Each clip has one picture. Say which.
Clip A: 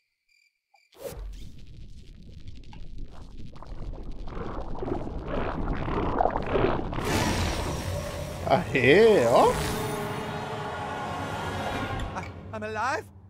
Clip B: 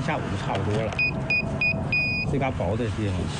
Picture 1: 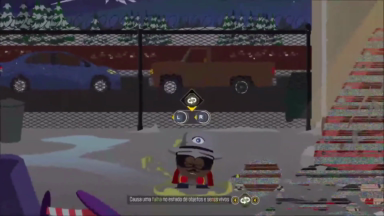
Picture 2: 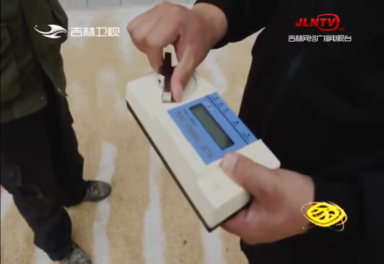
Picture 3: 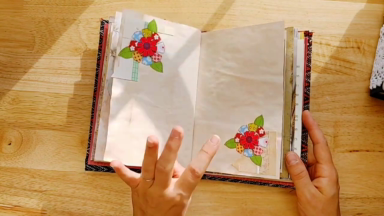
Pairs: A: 1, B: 2